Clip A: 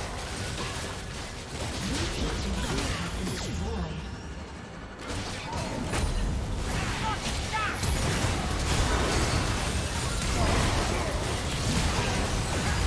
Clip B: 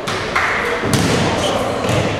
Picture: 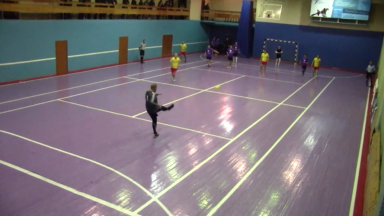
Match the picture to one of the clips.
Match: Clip B